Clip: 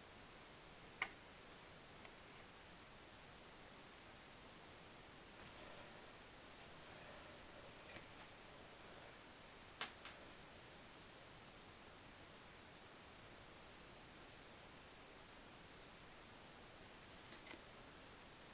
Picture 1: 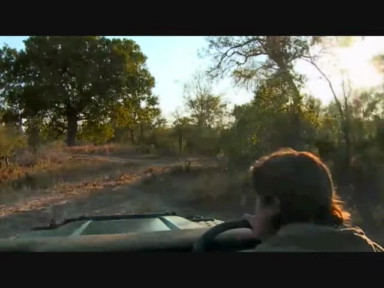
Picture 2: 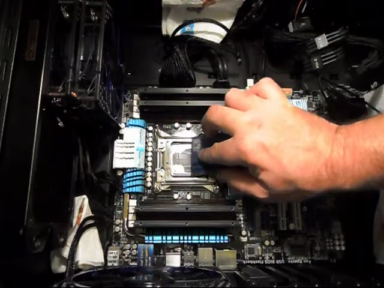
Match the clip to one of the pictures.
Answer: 2